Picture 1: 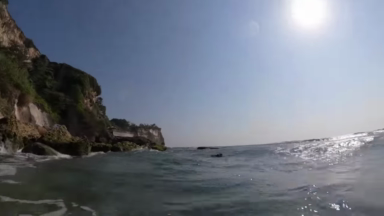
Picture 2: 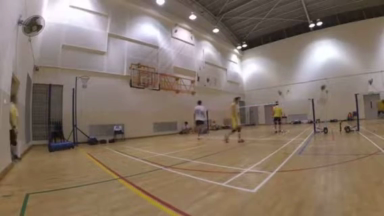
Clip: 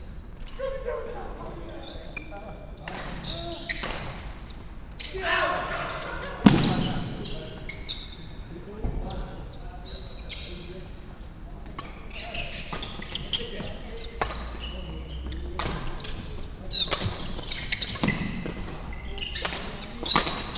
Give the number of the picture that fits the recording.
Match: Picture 2